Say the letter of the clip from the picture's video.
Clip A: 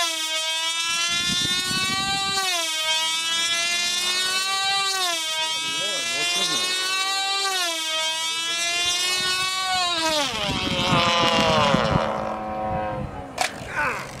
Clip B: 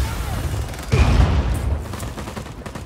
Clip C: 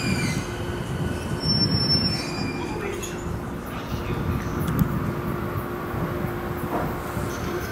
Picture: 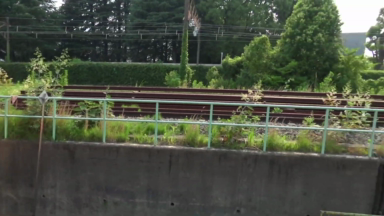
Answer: C